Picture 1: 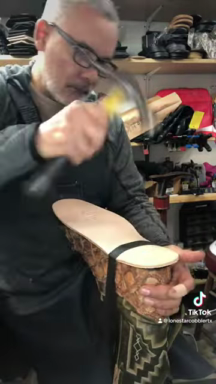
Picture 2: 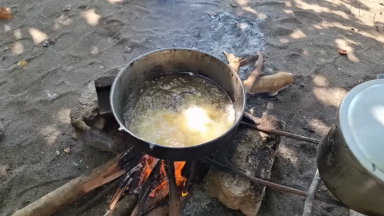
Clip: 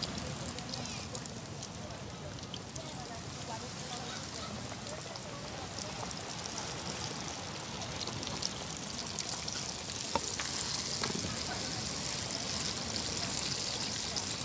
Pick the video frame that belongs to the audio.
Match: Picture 2